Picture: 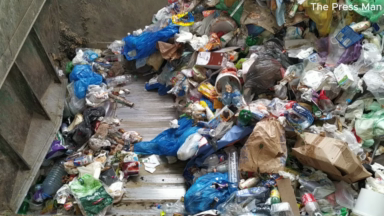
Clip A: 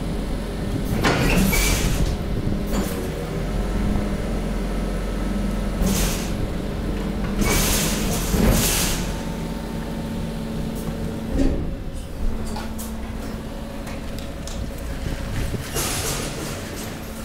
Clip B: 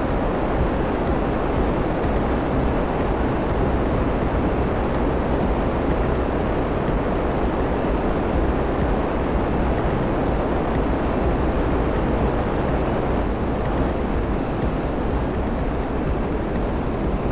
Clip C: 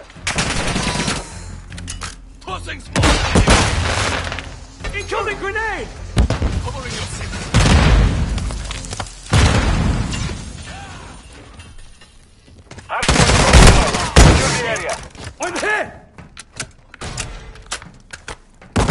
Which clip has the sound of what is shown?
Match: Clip A